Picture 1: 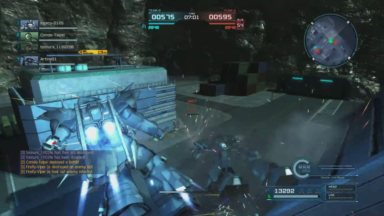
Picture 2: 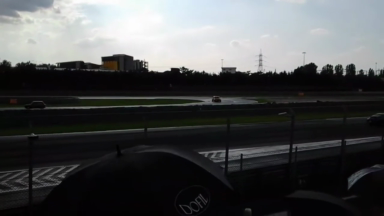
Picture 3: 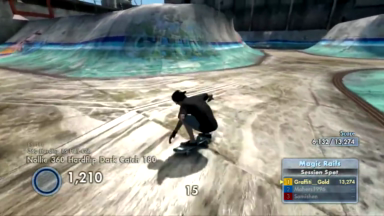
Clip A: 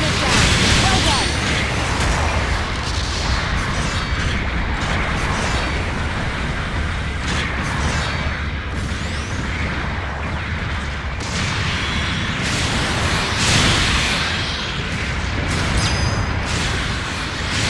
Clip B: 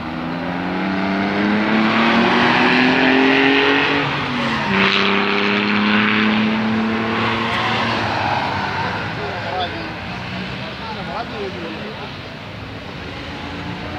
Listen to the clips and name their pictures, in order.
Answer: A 1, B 2